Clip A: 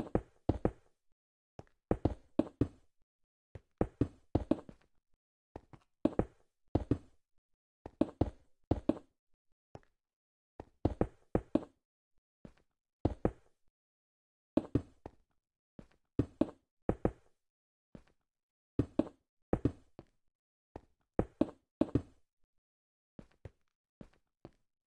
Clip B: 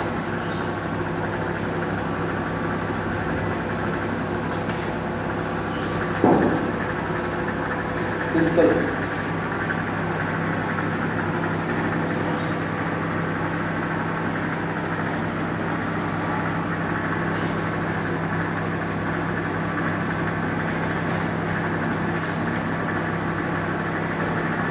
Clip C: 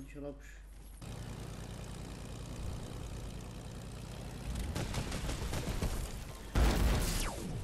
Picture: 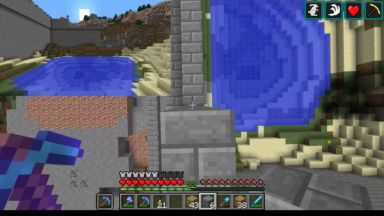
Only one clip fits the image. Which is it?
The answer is A